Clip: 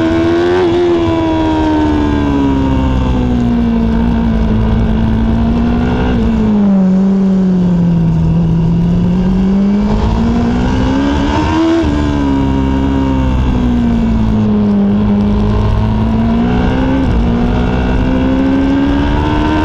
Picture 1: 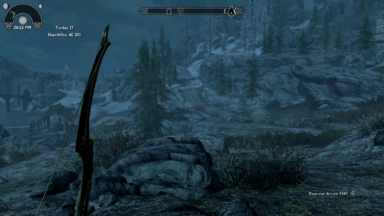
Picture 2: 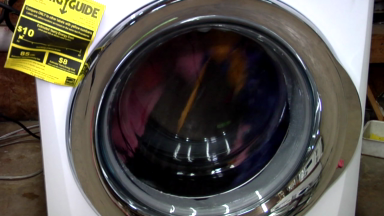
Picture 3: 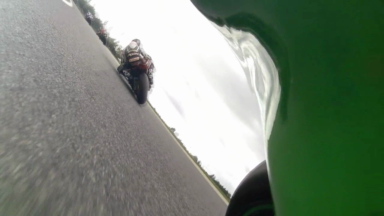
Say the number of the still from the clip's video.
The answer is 3